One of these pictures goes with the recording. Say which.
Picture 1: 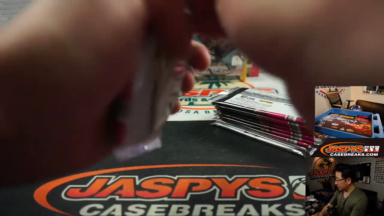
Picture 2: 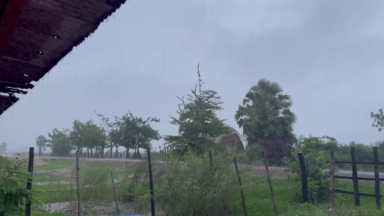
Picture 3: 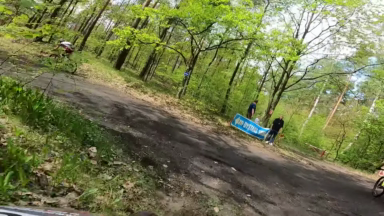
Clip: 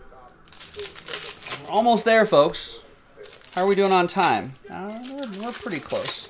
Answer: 1